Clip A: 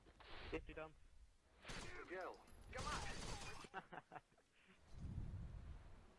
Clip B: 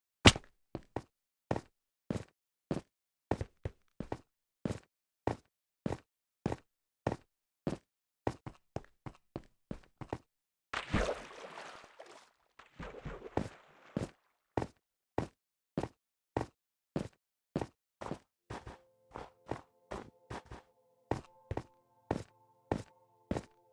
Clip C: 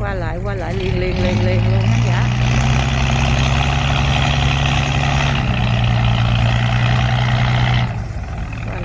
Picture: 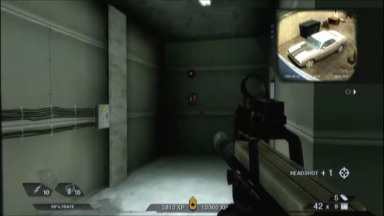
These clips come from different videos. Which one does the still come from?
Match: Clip A